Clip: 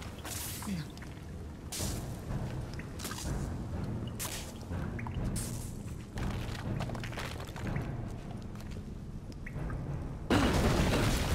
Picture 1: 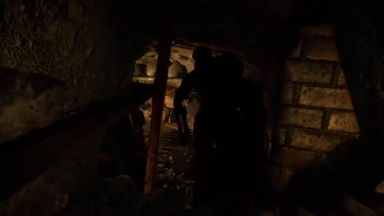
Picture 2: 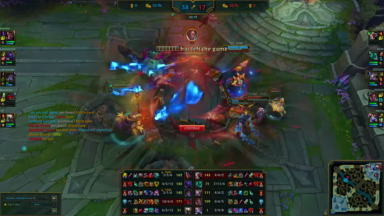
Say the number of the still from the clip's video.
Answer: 1